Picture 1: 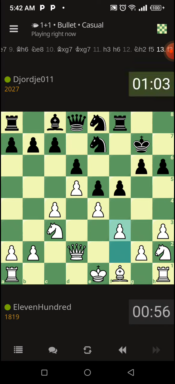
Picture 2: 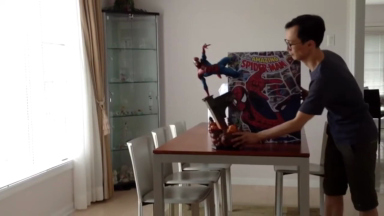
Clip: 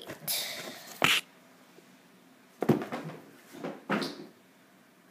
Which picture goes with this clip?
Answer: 2